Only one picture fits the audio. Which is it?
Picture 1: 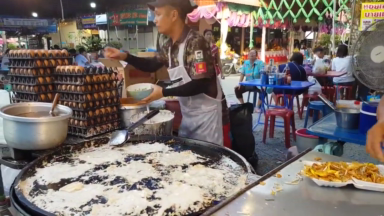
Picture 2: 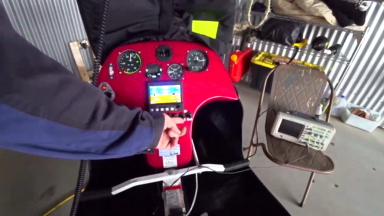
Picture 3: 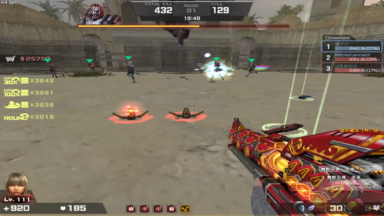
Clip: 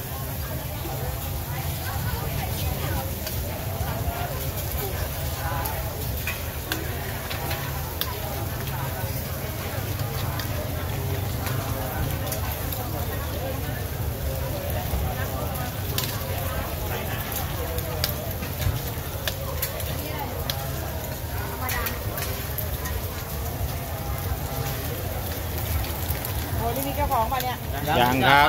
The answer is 1